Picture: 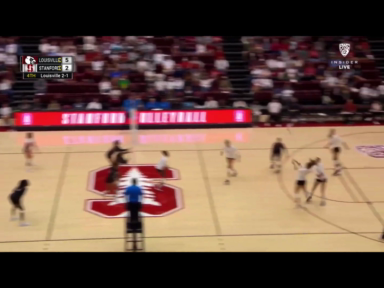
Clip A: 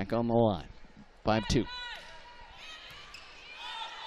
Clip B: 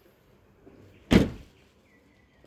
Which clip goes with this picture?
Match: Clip A